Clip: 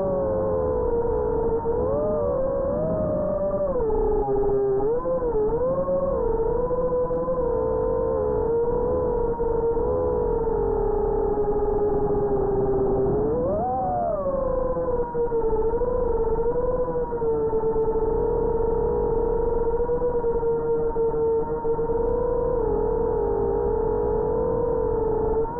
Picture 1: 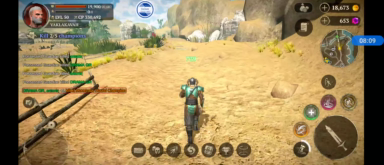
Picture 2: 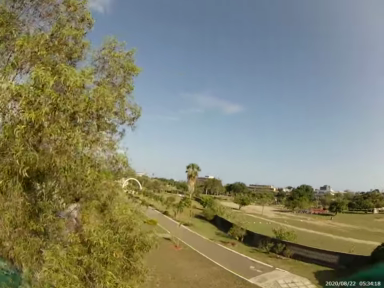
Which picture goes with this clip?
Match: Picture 2